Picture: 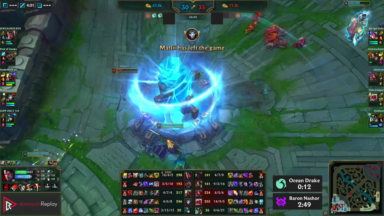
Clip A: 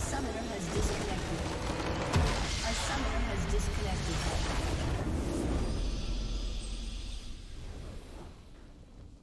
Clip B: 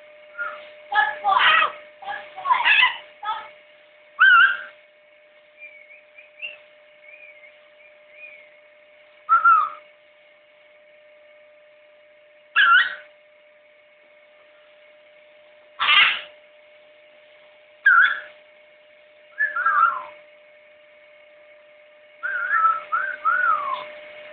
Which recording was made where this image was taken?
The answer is A